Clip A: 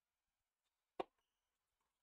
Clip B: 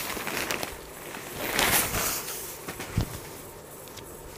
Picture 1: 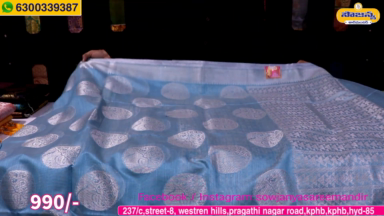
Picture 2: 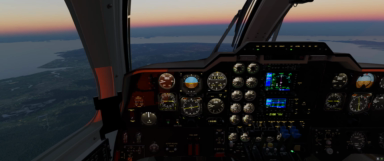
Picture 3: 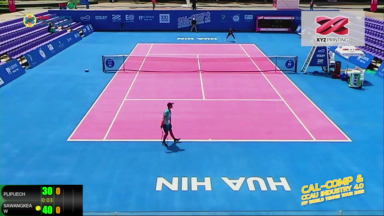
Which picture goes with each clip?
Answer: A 3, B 1